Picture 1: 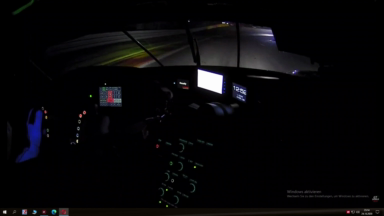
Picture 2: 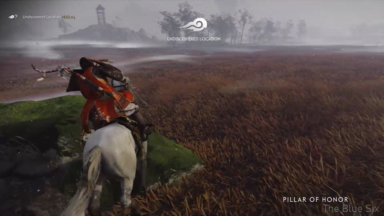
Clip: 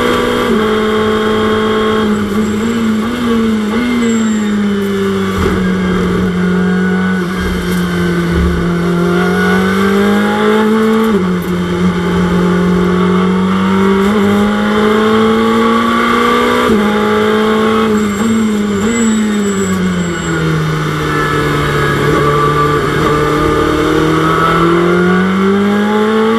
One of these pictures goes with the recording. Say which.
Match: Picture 1